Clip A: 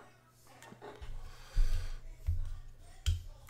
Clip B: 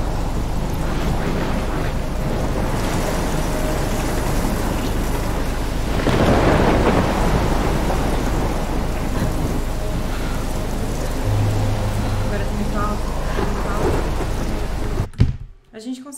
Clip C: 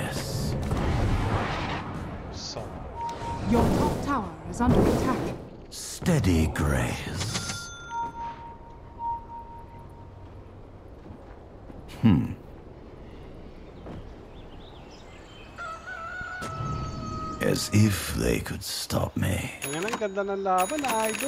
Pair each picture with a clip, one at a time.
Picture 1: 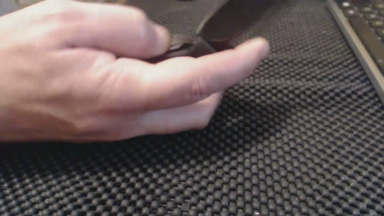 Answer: A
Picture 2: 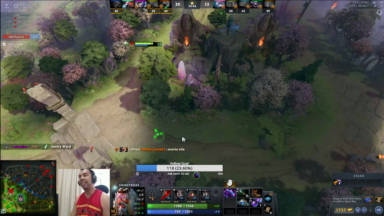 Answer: C